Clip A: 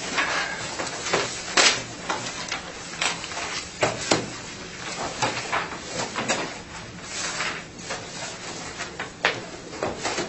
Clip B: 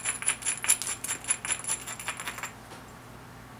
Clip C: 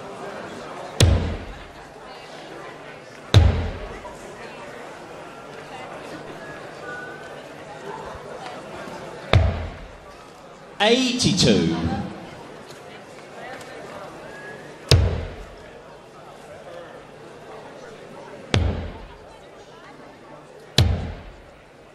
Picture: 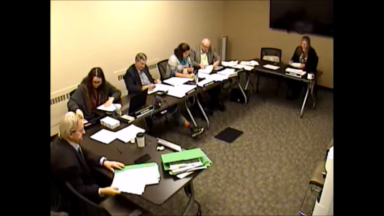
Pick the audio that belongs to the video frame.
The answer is A